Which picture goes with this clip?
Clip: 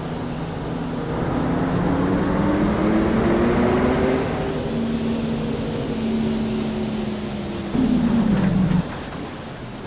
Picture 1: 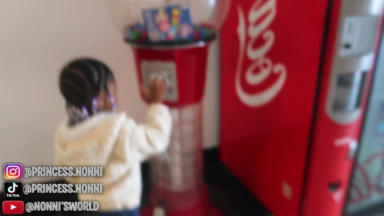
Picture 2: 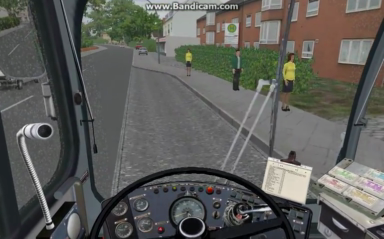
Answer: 2